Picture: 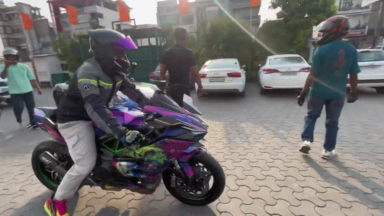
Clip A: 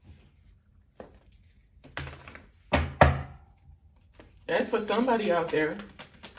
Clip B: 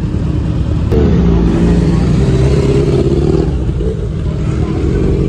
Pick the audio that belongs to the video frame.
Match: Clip B